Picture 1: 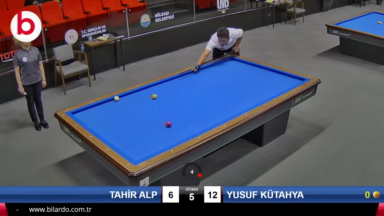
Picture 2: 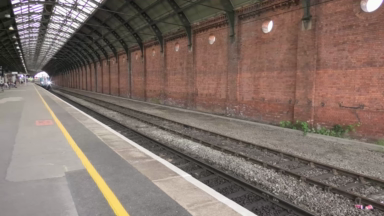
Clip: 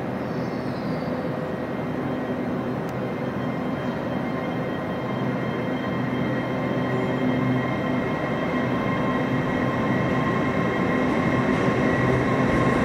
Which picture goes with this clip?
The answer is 2